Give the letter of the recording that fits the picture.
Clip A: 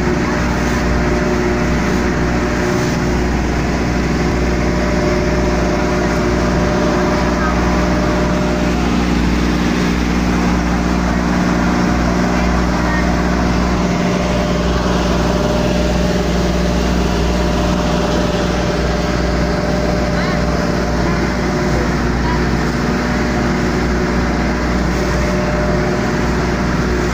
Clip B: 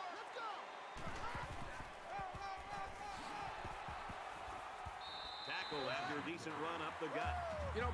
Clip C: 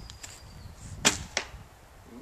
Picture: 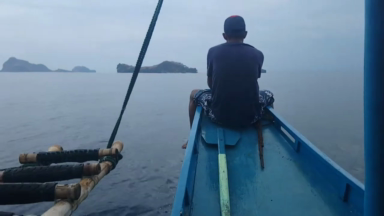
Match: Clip A